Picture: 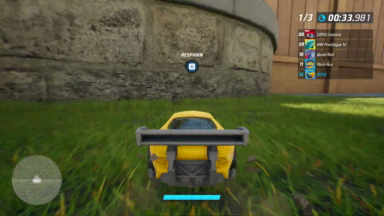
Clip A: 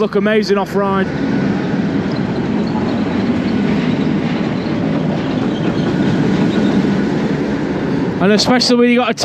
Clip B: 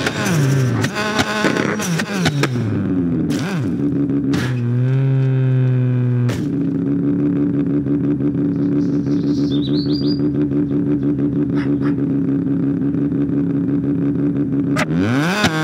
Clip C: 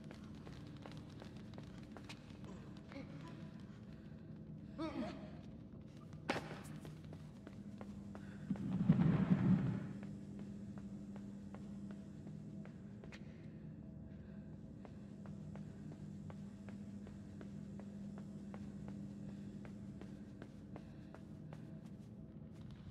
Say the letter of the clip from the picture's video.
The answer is B